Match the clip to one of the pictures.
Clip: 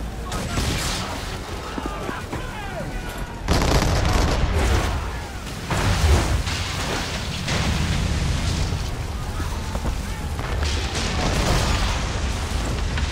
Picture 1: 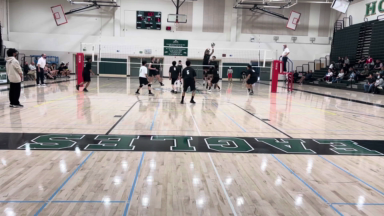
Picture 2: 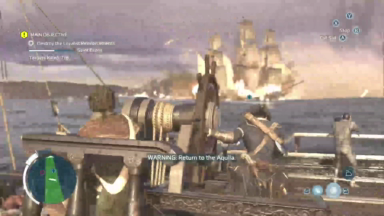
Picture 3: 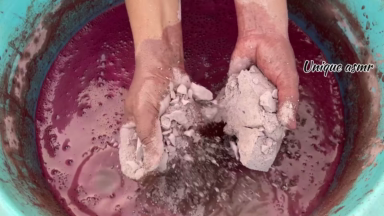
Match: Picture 2